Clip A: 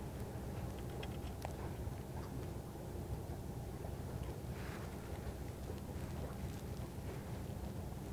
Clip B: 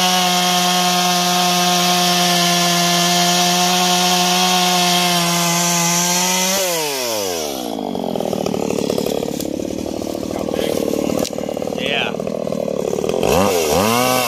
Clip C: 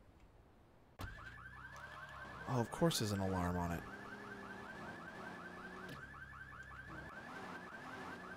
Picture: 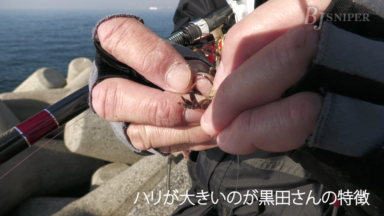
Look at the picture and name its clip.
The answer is A